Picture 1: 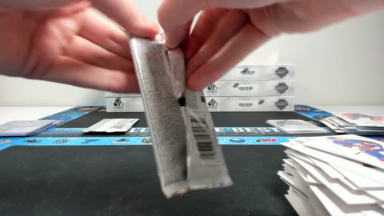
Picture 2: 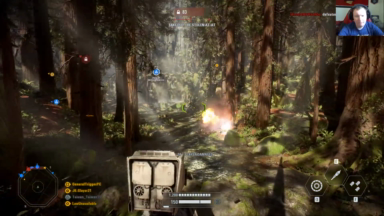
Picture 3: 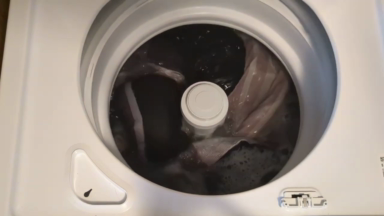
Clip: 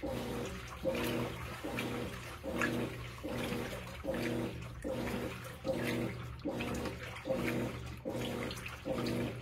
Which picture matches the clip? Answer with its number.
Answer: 3